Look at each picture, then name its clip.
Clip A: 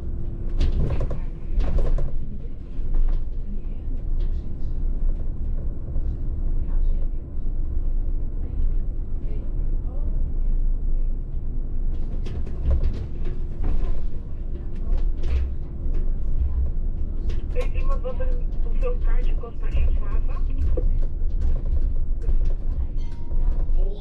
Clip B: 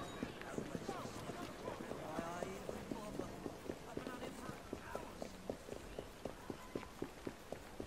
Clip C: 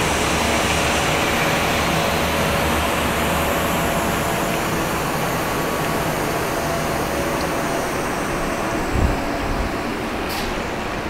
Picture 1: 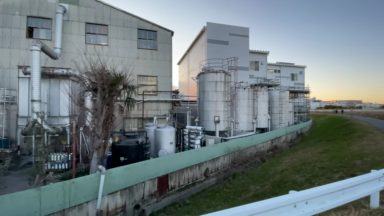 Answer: C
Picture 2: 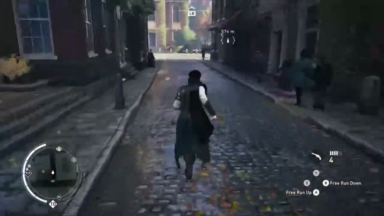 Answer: B